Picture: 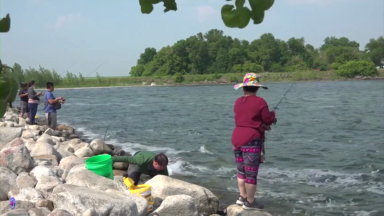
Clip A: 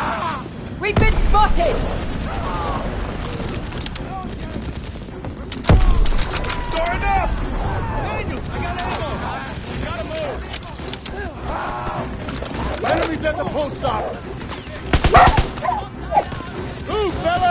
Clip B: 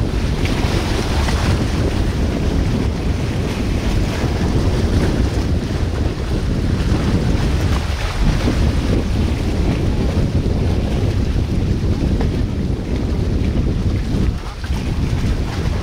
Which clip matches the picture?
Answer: B